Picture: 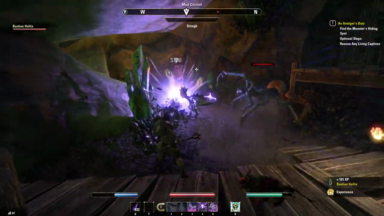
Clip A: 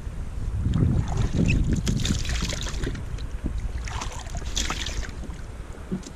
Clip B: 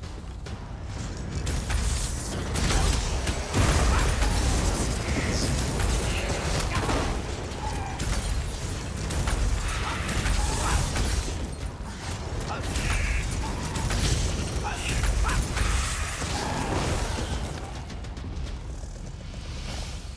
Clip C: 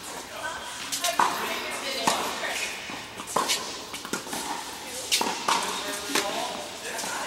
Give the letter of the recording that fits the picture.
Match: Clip B